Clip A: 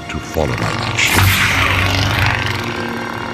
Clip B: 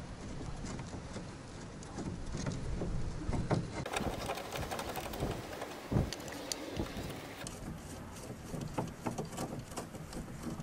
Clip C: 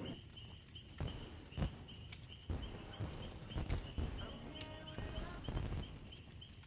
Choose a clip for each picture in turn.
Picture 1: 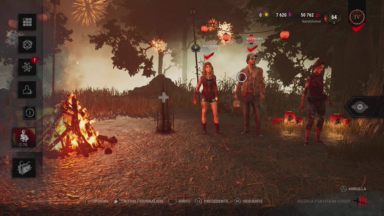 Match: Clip C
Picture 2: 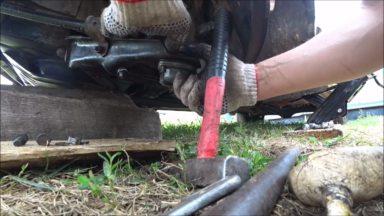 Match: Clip B